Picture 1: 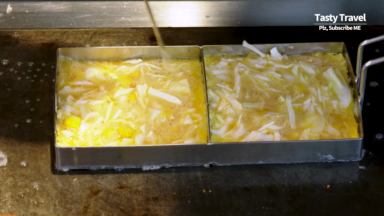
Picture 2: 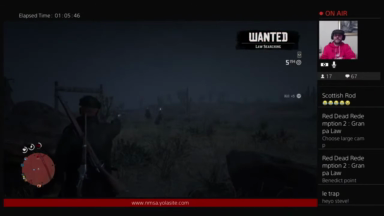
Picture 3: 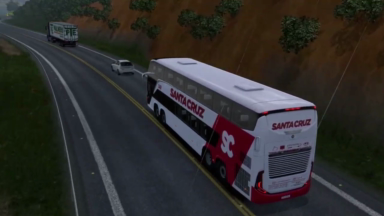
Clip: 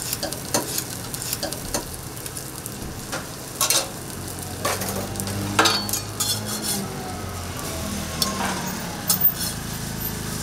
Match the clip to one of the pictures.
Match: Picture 1